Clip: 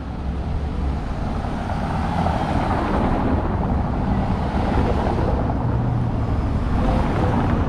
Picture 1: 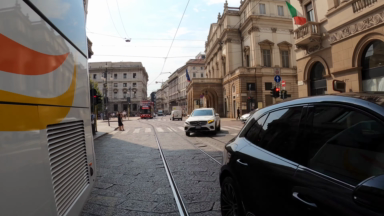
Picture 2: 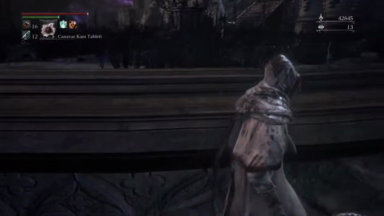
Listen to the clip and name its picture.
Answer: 1